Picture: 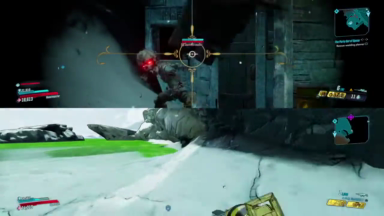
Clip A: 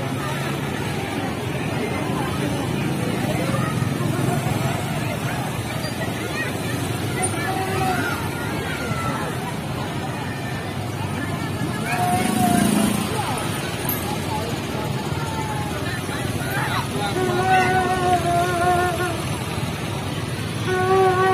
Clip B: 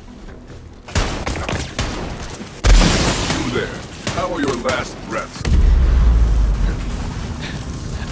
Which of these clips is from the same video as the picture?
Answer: B